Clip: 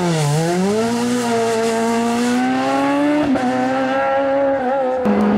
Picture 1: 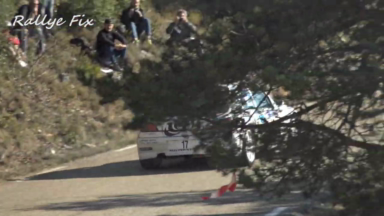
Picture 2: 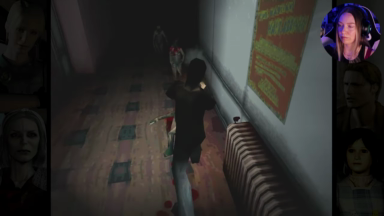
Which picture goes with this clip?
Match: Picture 1